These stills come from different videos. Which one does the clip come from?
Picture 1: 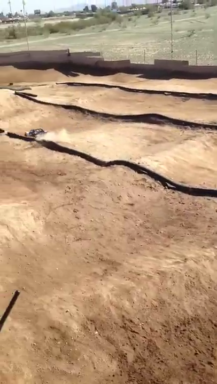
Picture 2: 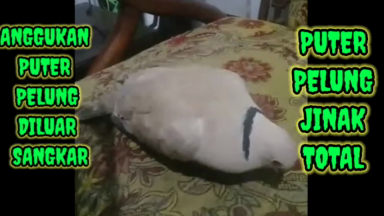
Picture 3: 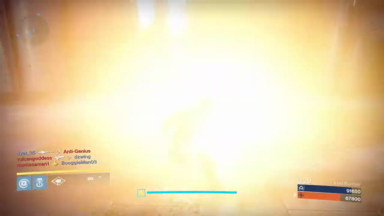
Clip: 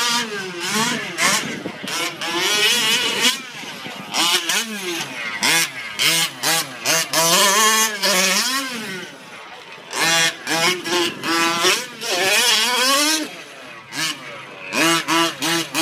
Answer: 1